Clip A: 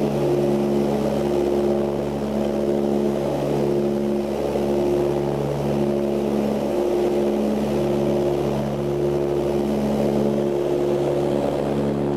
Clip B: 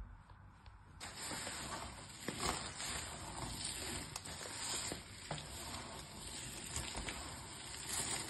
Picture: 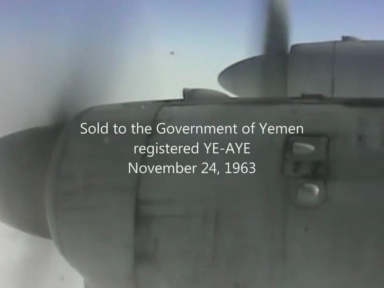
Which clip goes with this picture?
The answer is A